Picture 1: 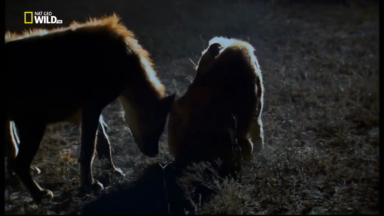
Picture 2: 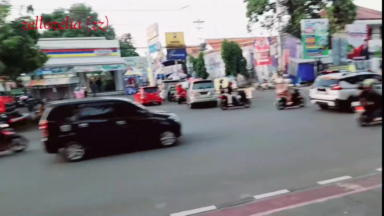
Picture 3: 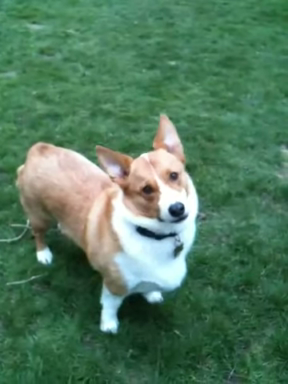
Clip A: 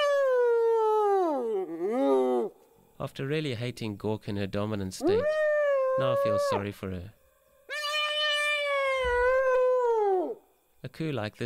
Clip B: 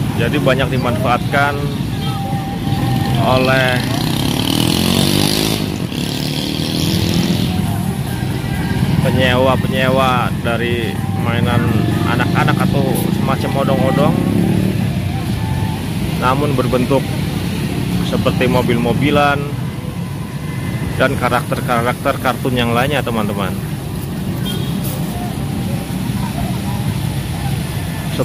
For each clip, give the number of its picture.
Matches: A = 1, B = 2